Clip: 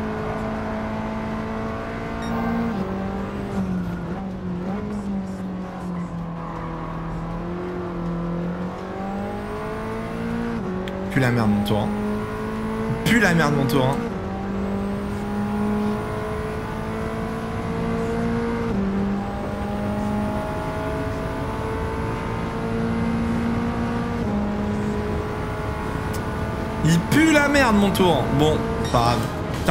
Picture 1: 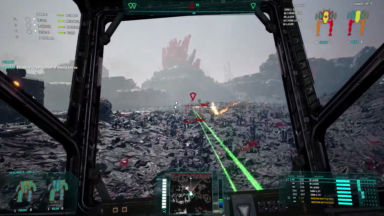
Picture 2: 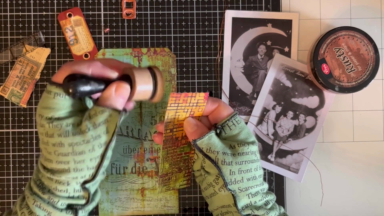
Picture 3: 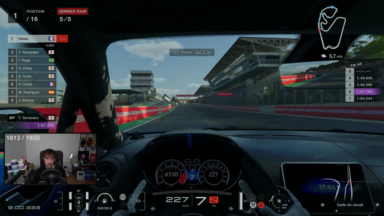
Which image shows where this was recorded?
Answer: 3